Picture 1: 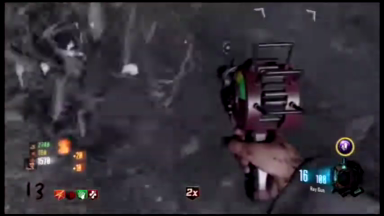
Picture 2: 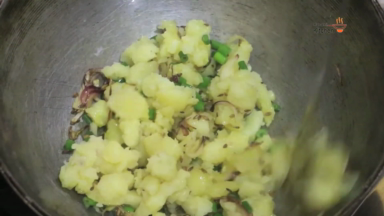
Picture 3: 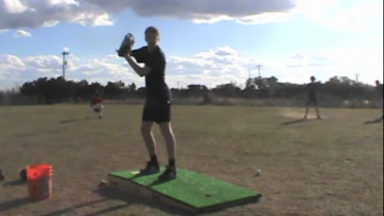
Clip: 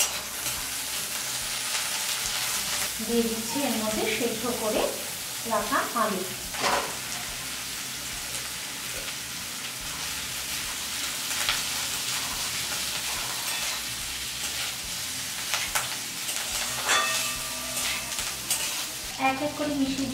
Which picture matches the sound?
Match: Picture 2